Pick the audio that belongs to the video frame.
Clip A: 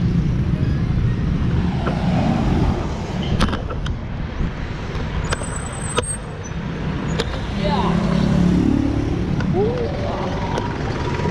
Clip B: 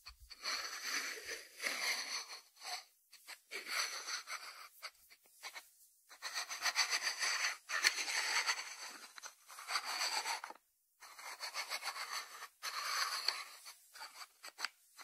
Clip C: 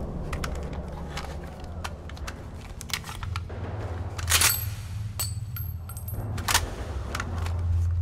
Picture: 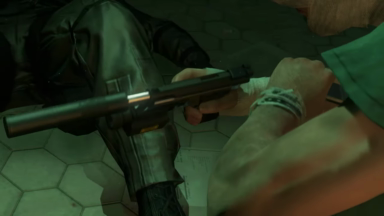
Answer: C